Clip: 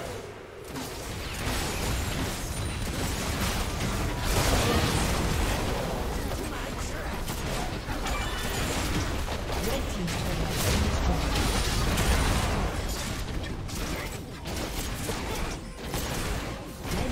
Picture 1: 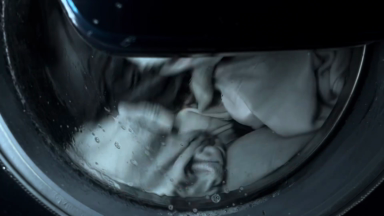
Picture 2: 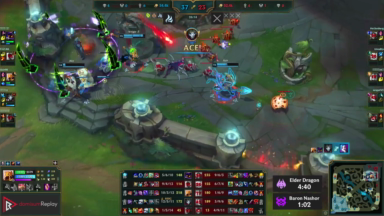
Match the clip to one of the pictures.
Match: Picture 2